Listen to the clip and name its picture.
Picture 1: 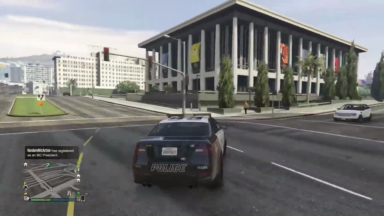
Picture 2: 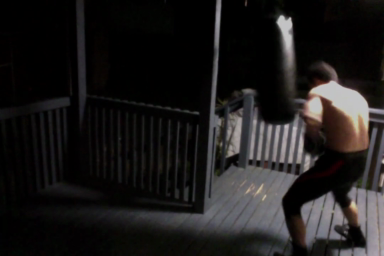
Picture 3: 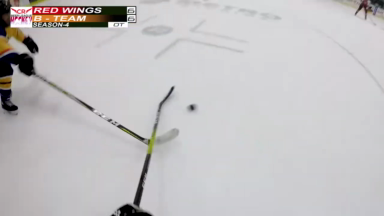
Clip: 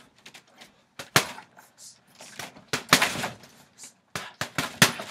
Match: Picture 2